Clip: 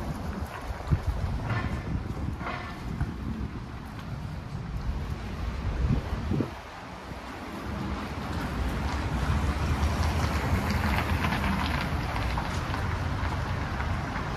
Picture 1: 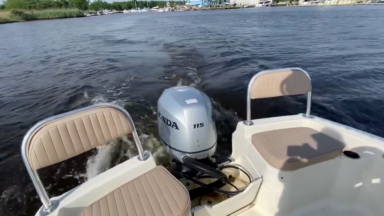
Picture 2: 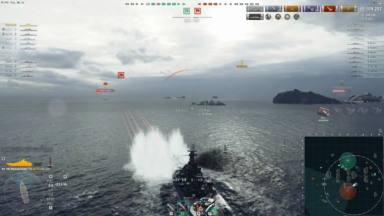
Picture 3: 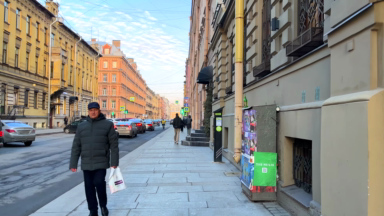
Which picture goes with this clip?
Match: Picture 3